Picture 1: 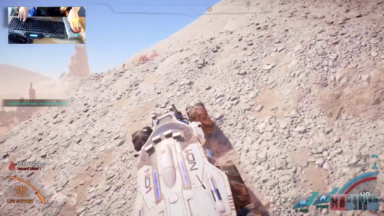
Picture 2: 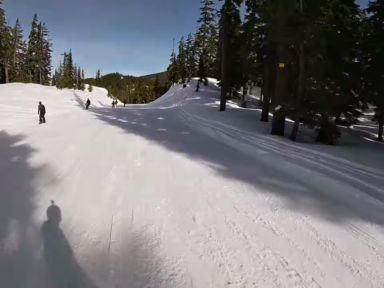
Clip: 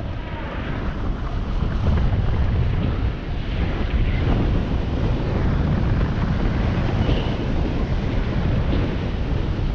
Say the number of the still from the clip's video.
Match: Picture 2